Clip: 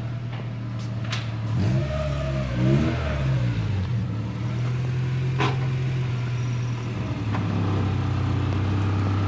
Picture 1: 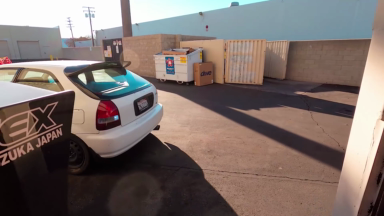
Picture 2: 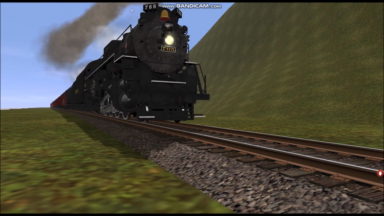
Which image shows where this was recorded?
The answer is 1